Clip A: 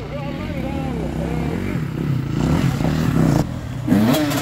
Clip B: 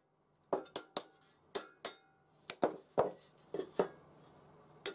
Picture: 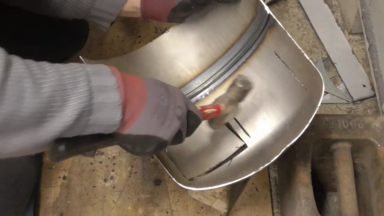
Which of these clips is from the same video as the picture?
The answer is B